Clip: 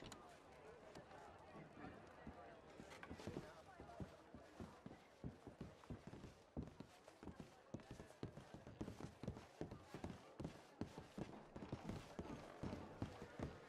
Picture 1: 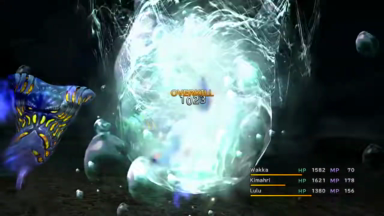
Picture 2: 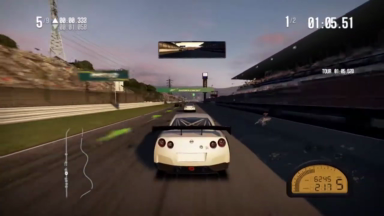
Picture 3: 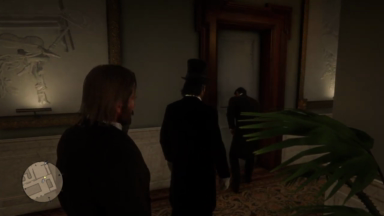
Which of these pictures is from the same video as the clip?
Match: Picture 3